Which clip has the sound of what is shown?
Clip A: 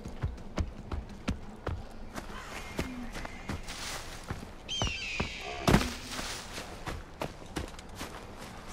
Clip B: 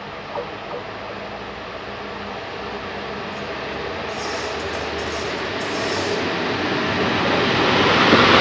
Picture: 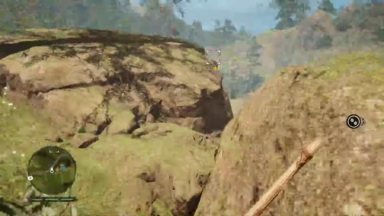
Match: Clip A